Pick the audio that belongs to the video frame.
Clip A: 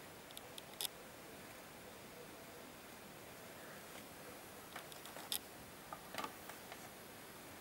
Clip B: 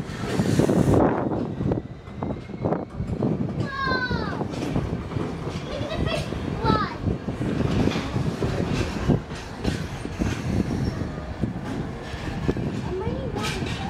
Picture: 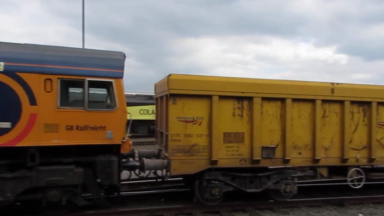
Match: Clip B